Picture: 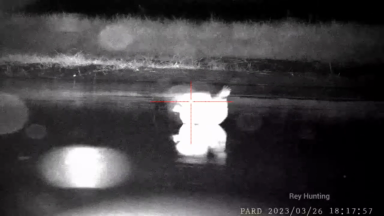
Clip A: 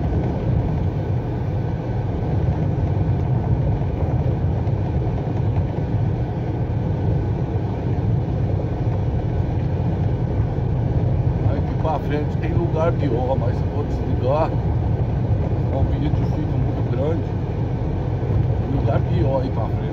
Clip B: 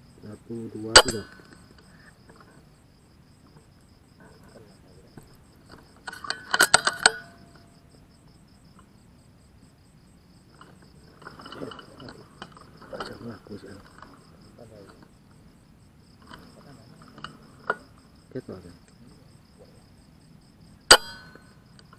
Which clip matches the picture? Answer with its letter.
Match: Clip B